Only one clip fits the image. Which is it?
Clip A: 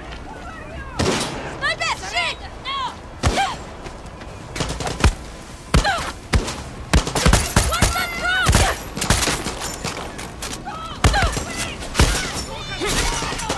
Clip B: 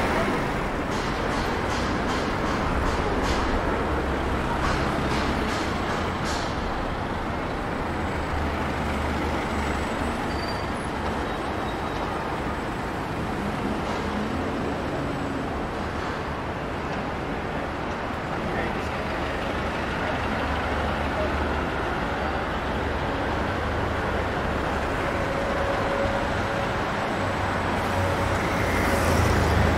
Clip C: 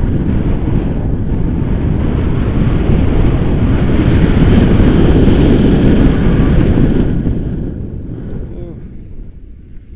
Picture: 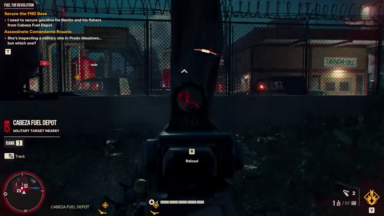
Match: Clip A